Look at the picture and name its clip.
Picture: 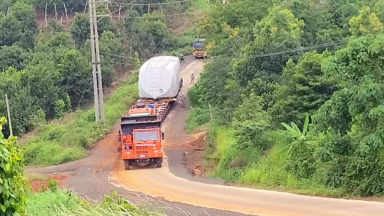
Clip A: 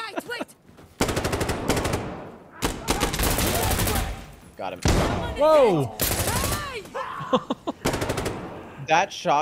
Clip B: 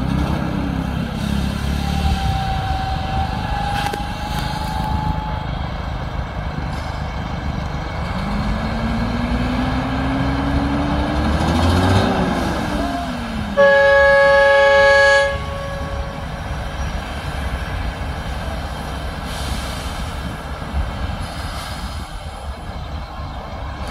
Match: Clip B